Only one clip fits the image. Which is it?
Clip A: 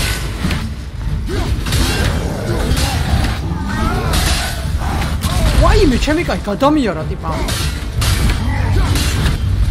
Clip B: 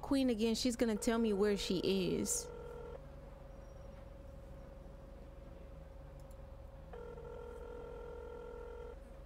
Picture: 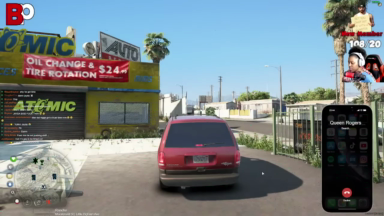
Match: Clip B